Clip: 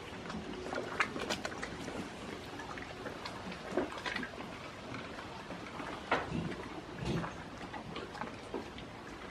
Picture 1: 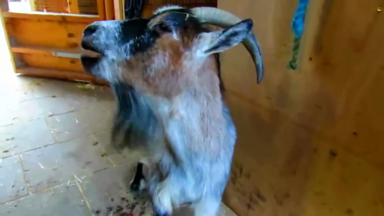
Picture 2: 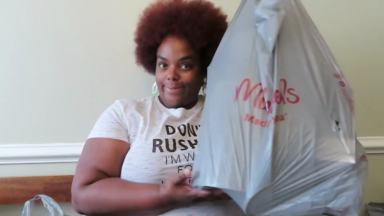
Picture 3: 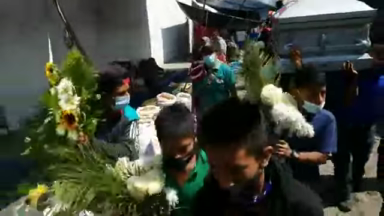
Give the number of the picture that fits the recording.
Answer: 1